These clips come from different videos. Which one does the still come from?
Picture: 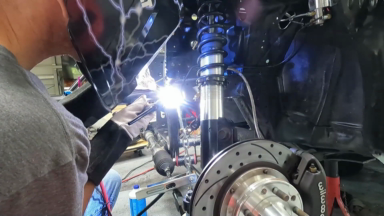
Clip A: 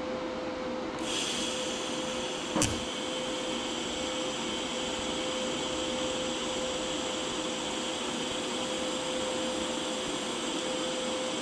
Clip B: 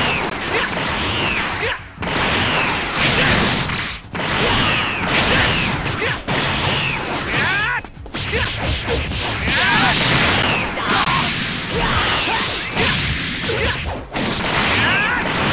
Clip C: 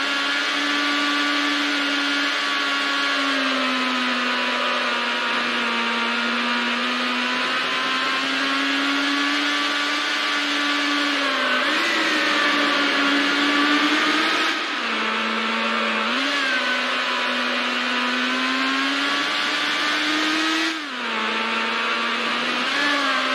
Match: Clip A